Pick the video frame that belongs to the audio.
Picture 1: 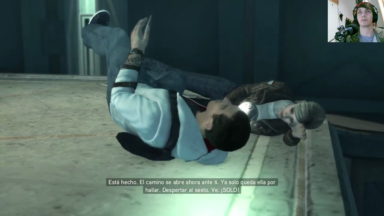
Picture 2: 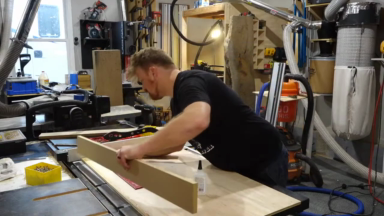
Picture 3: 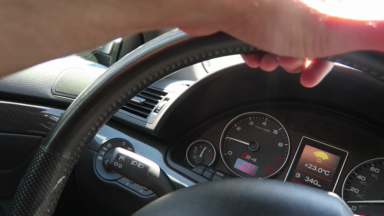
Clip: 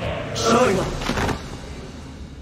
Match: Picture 1